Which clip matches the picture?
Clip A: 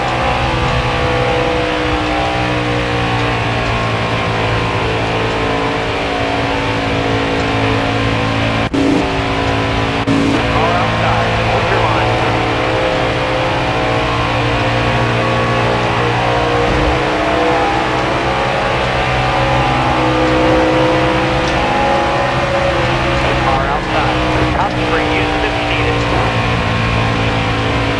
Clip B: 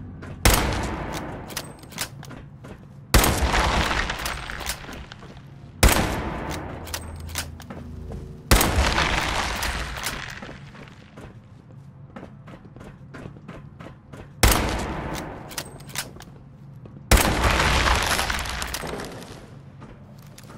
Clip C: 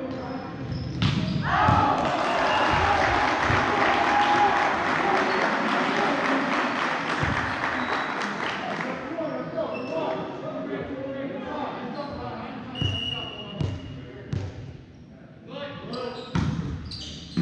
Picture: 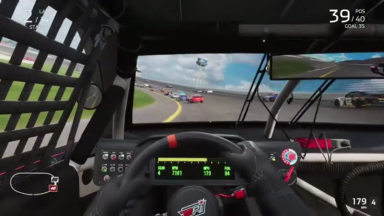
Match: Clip A